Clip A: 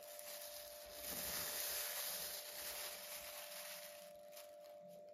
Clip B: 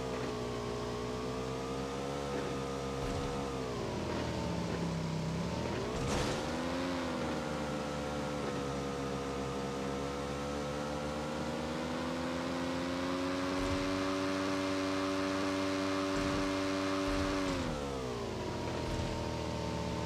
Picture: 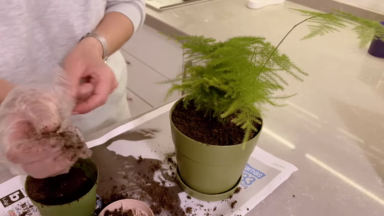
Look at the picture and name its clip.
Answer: A